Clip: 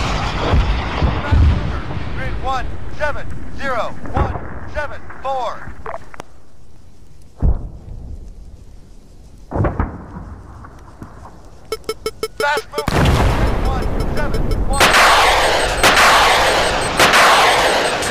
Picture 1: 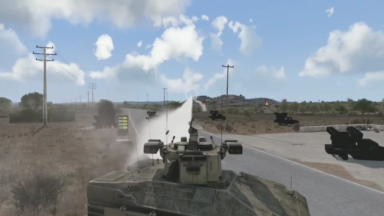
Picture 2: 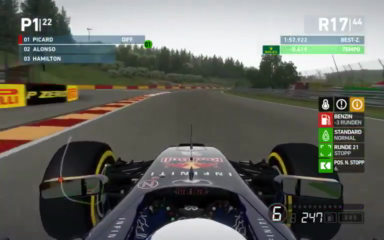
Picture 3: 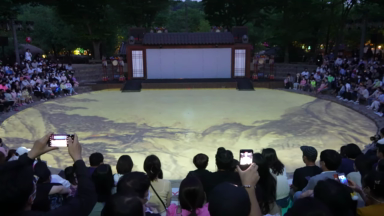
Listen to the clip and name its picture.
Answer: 1